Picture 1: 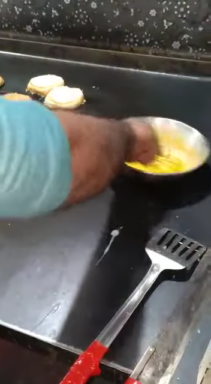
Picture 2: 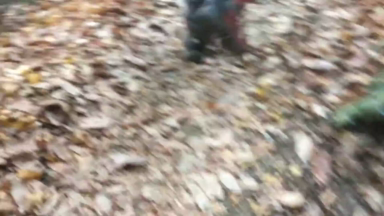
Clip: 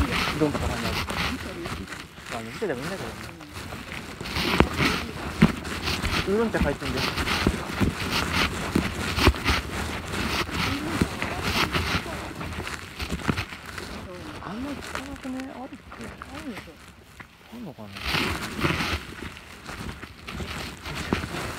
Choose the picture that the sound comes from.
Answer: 2